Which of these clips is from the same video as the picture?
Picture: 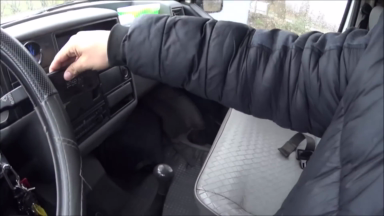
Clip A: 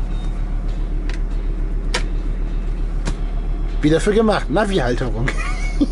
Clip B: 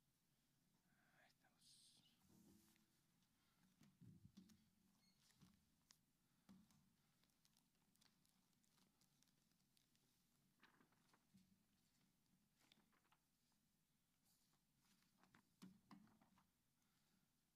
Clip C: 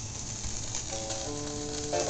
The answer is A